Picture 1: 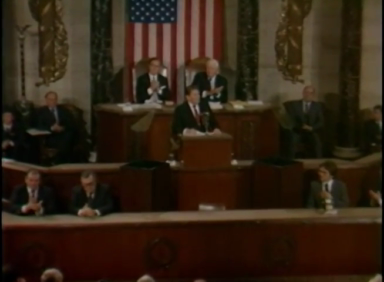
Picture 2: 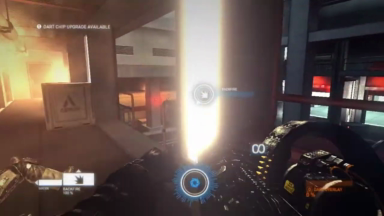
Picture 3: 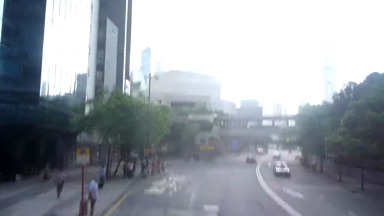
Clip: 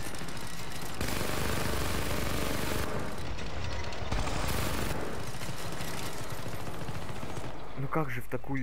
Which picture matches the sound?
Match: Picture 2